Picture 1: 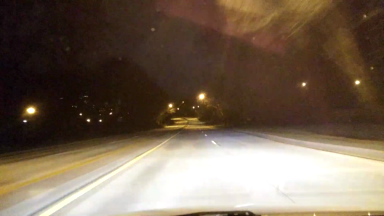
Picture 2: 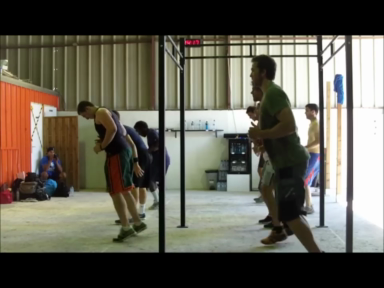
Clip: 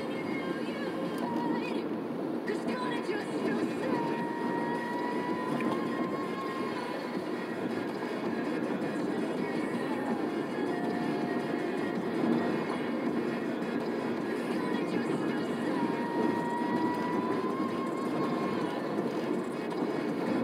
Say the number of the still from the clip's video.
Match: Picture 1